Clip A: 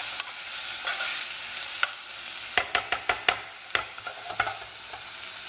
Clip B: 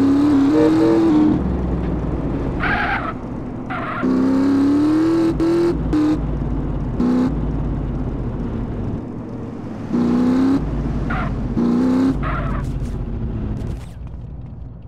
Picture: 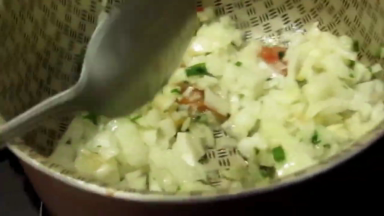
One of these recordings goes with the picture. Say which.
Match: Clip A